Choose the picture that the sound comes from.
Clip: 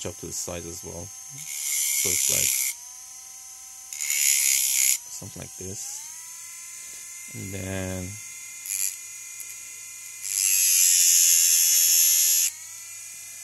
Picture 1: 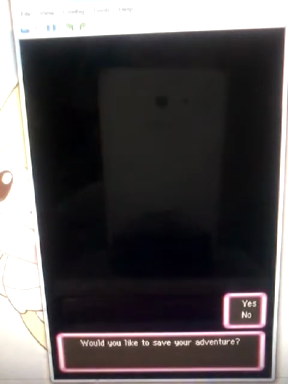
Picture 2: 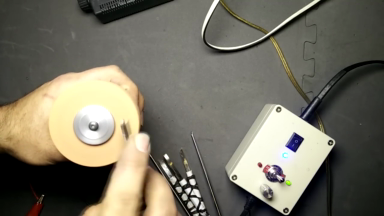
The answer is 2